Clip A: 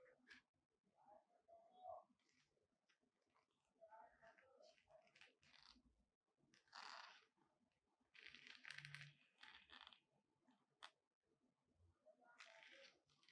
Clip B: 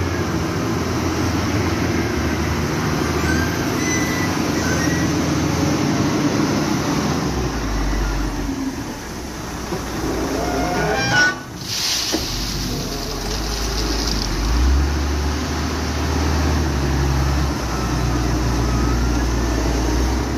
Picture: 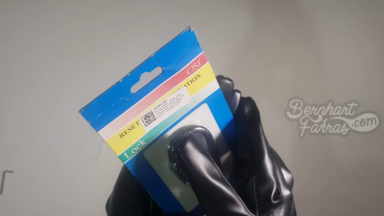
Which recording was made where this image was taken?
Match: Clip A